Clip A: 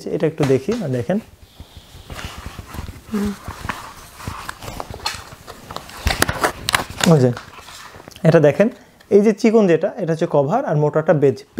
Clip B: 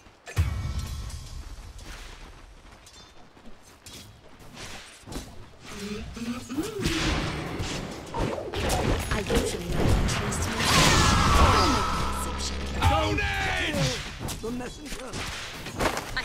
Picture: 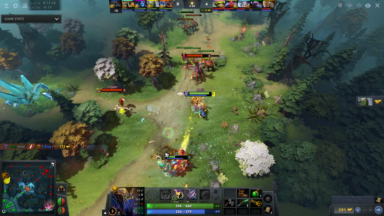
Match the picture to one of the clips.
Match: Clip B